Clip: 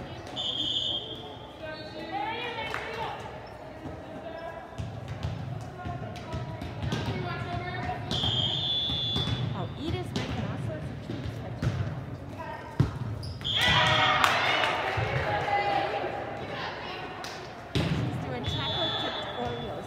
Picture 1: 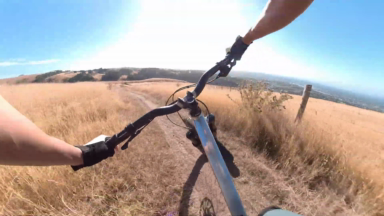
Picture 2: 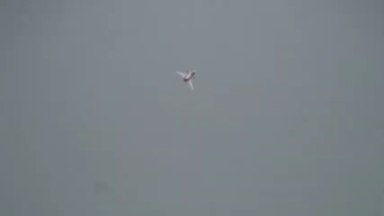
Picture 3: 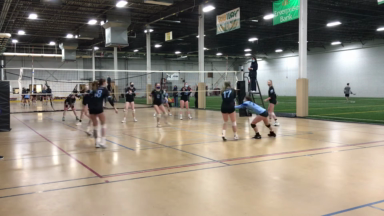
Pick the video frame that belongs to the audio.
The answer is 3